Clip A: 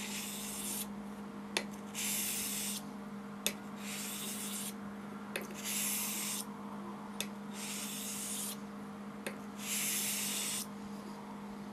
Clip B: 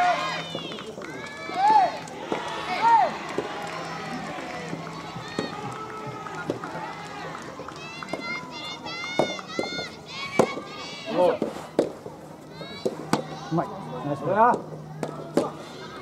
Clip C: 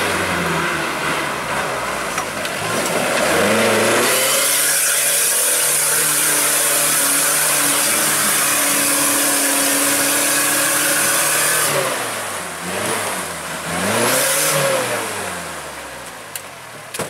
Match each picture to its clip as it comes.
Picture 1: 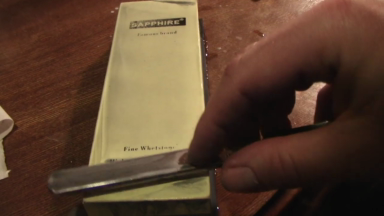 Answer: A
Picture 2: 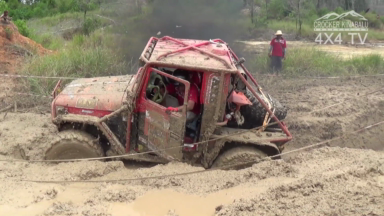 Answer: C